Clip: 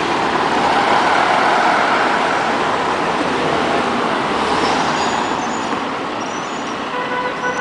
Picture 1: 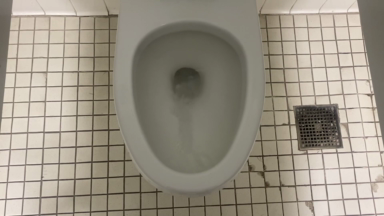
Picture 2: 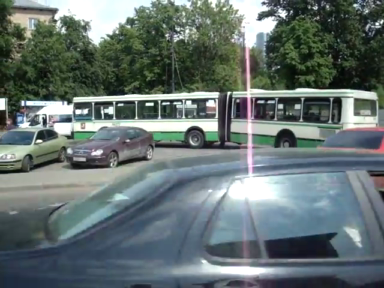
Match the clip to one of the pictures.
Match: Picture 2